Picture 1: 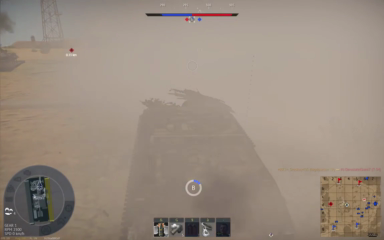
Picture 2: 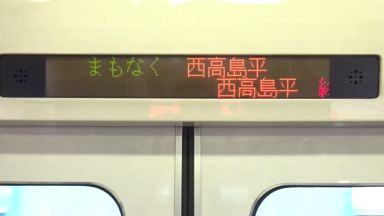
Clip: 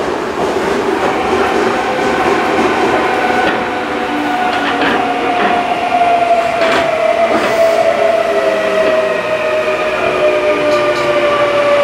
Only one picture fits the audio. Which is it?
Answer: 2